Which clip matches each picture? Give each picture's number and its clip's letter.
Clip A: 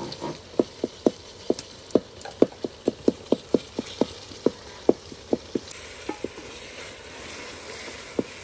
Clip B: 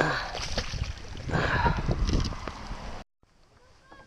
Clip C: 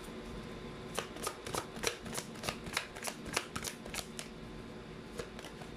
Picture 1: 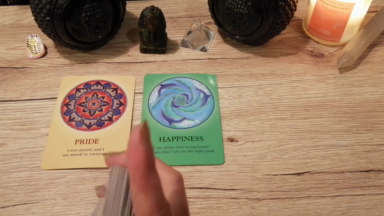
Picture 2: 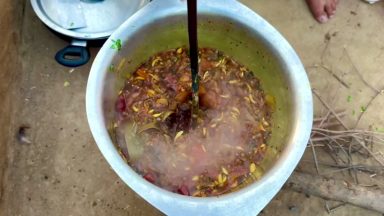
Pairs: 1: C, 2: A